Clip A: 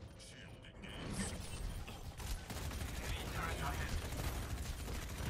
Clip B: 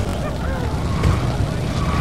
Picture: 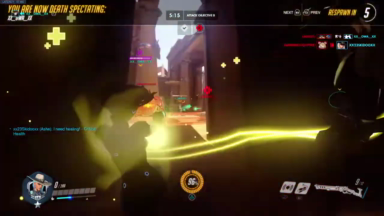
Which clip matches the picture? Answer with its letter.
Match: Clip A